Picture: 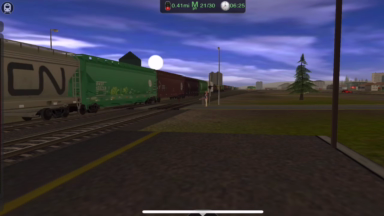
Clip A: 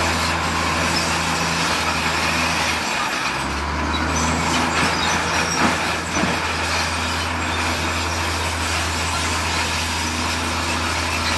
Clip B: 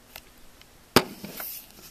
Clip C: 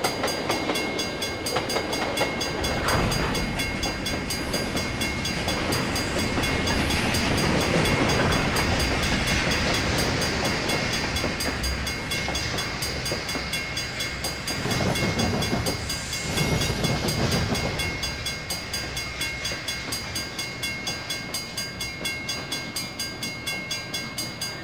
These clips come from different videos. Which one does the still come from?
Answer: C